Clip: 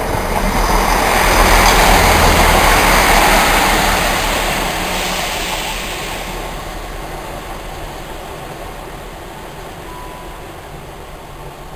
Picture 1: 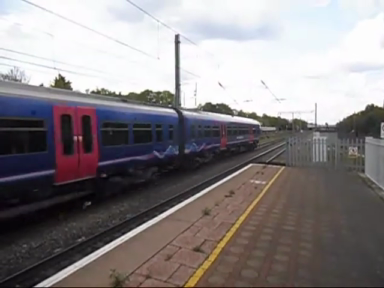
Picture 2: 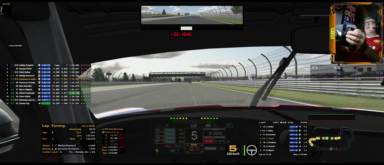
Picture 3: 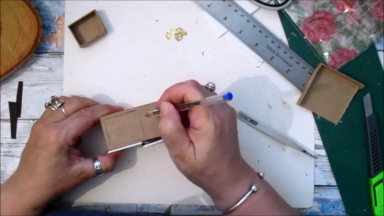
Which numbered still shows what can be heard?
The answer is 1